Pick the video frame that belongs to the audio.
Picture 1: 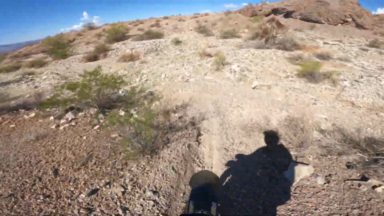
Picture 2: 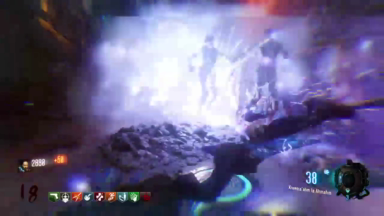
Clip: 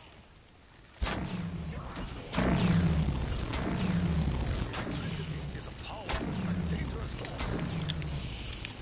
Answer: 2